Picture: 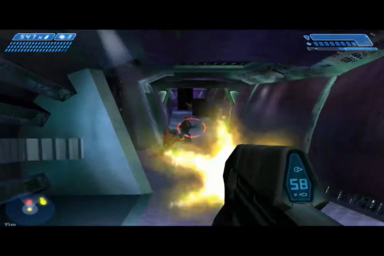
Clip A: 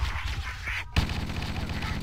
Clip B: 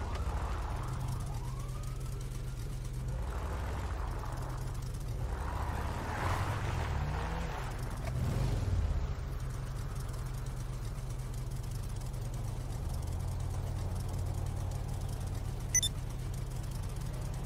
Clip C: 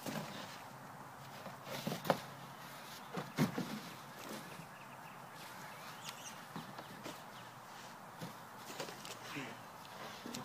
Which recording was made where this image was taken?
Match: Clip A